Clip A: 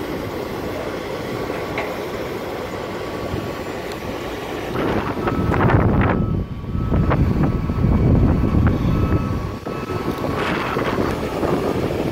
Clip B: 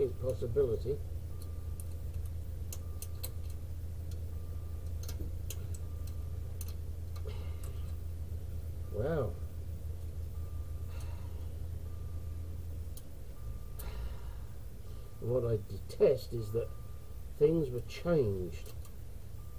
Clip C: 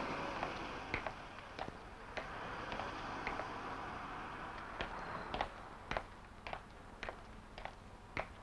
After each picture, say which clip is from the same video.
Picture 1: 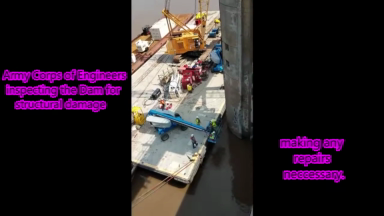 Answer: A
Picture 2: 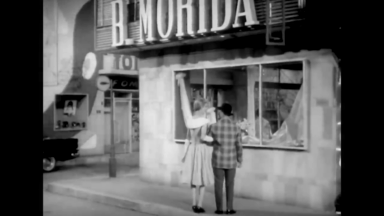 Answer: C